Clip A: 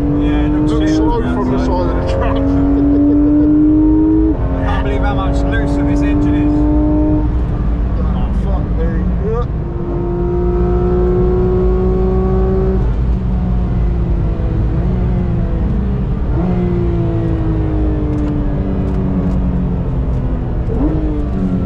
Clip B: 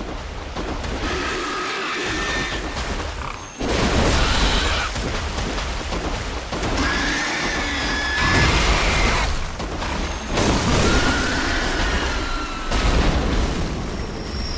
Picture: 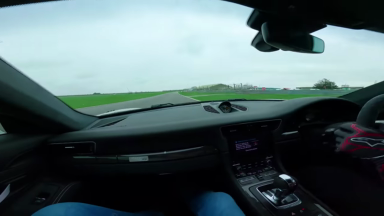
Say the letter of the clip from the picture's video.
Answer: A